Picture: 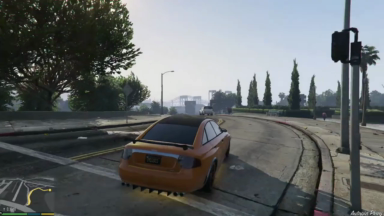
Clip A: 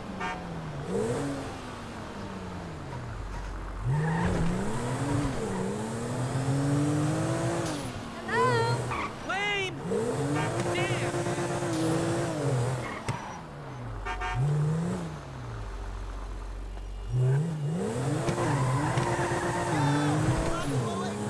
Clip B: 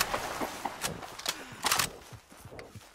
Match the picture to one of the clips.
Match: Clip A